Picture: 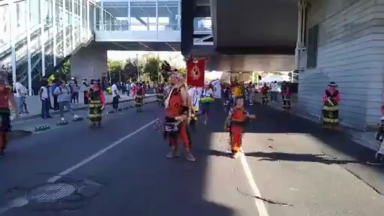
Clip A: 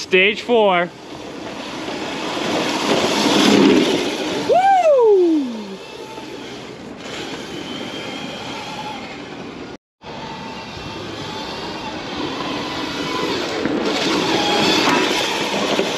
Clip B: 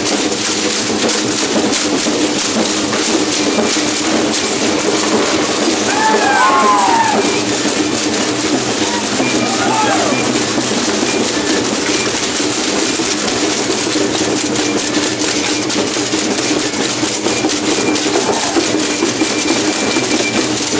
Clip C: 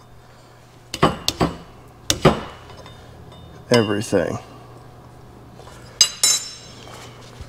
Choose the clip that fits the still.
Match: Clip B